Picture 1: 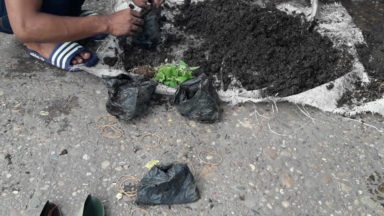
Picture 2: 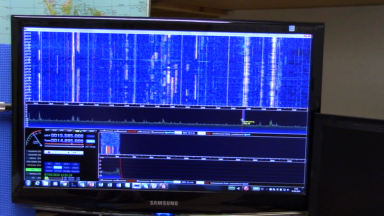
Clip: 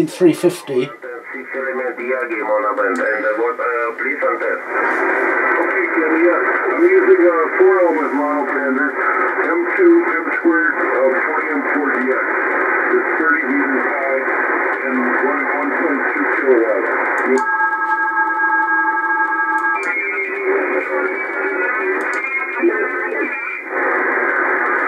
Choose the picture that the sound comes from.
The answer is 2